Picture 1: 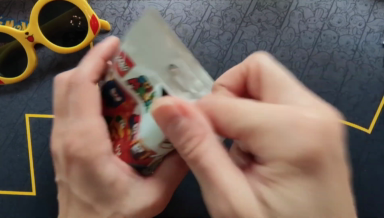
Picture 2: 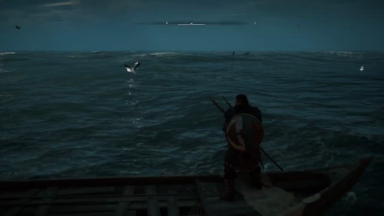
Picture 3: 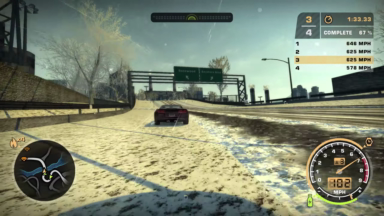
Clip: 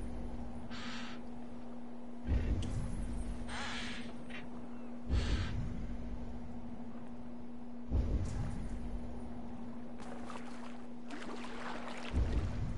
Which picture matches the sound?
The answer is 2